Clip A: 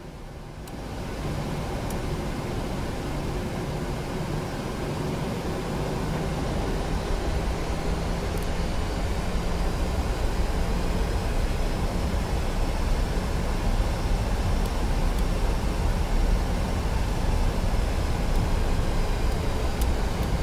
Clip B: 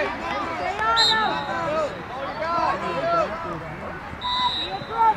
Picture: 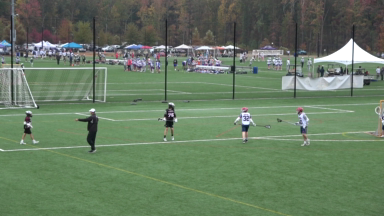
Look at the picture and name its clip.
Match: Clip B